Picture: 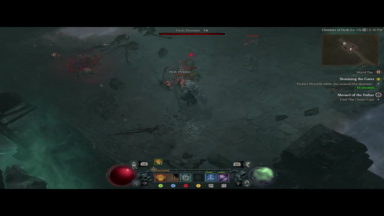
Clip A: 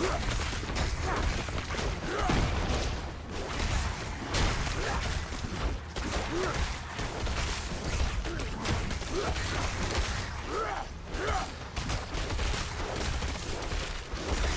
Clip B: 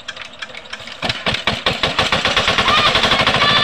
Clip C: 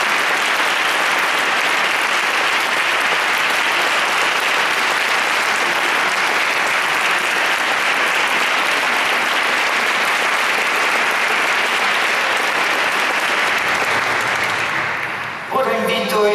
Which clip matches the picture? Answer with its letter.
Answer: A